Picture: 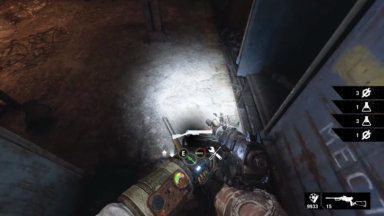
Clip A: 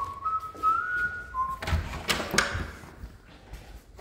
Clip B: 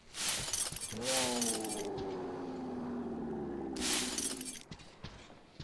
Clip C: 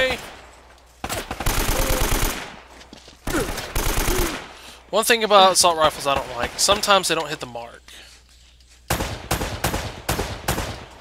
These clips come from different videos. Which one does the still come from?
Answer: B